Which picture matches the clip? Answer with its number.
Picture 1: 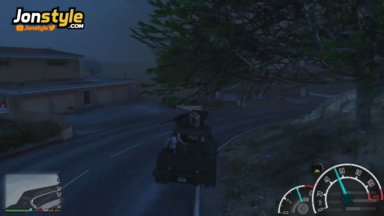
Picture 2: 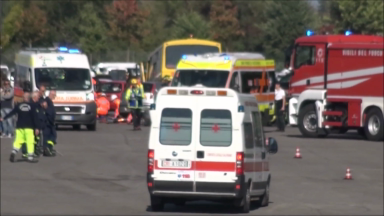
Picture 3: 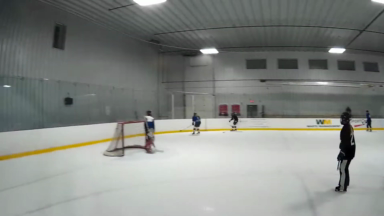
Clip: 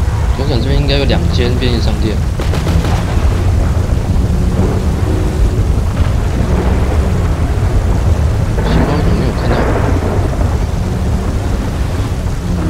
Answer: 1